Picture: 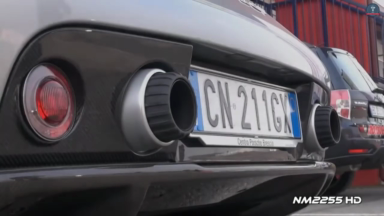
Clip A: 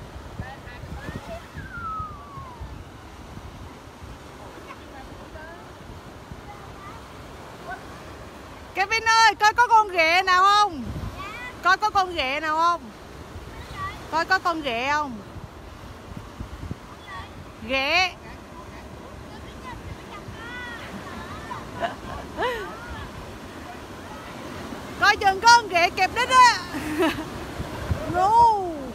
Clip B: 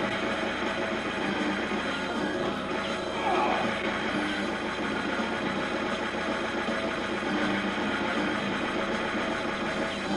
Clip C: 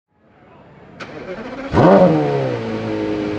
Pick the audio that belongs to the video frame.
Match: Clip C